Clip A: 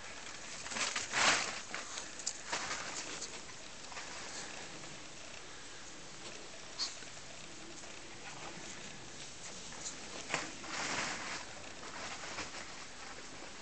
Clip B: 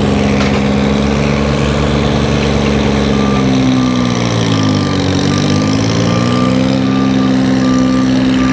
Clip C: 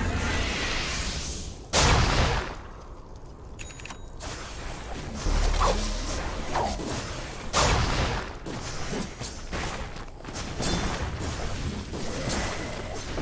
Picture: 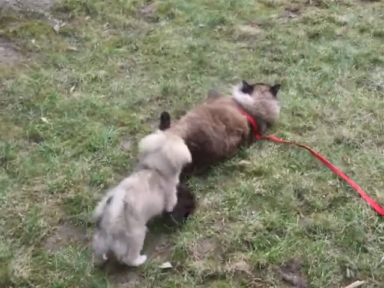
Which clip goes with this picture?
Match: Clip A